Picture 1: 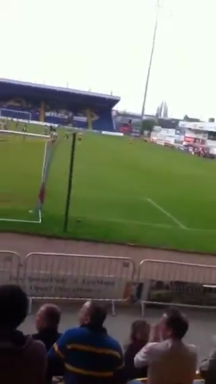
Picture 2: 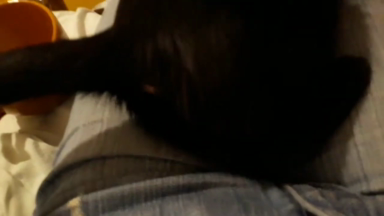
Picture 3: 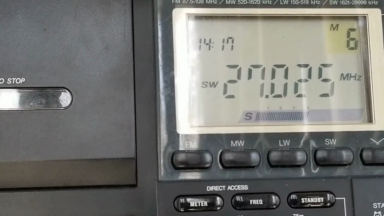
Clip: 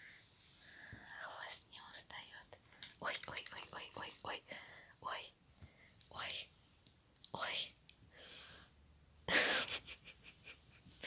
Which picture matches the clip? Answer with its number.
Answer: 2